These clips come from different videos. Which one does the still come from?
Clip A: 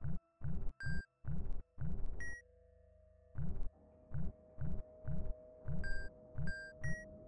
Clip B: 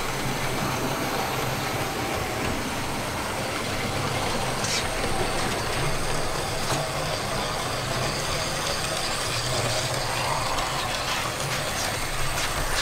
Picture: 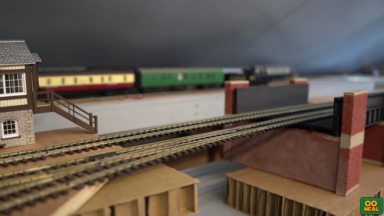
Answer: B